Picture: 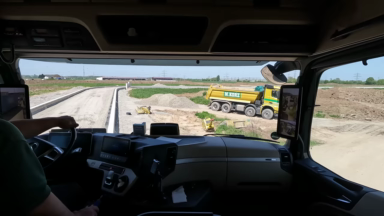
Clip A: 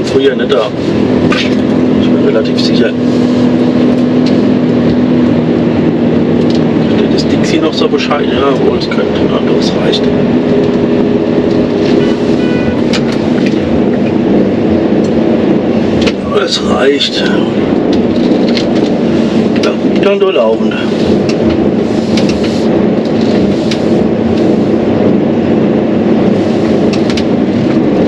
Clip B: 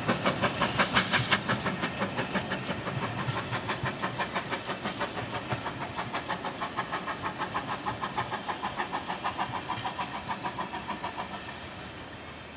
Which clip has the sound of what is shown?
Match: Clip A